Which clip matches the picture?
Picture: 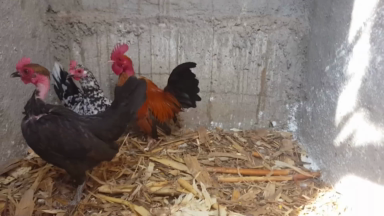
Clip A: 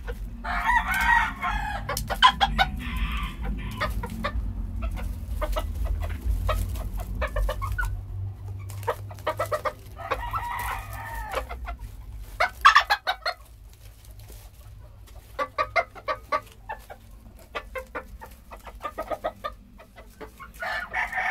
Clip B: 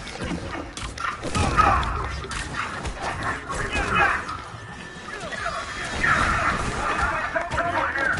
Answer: A